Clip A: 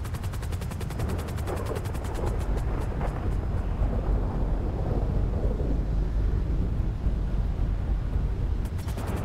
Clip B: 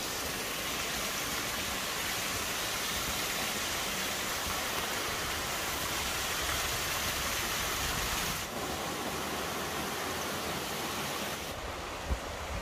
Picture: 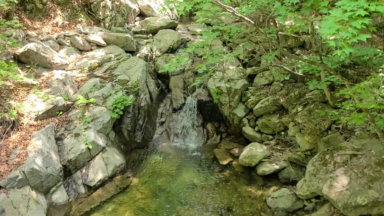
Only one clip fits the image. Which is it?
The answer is B